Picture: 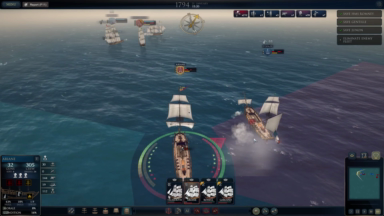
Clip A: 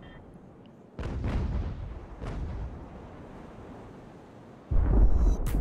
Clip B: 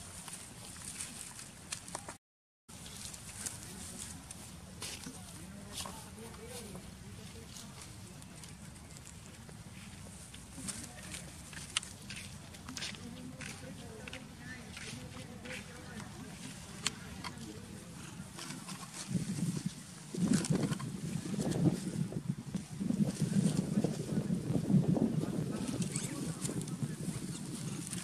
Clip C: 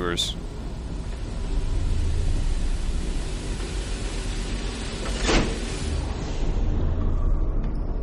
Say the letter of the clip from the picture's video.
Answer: A